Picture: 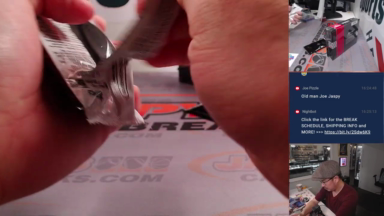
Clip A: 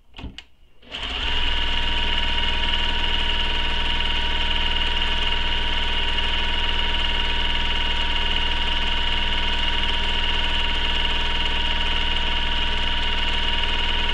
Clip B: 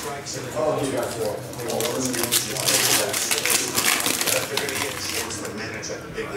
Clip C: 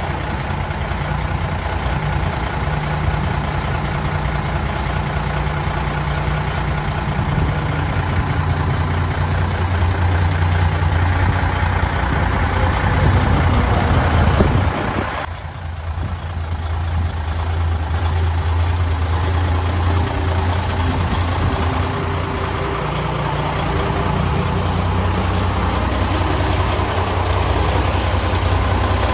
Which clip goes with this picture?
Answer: B